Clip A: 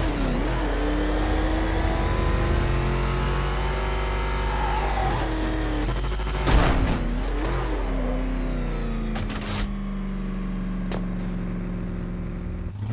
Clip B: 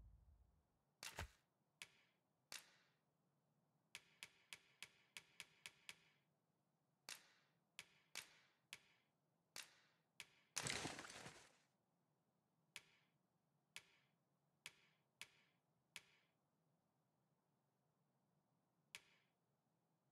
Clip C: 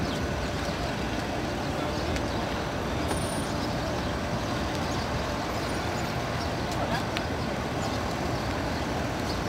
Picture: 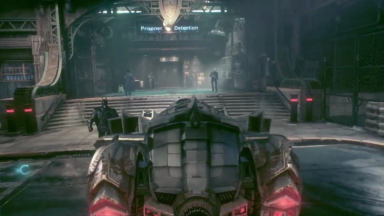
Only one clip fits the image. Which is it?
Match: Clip A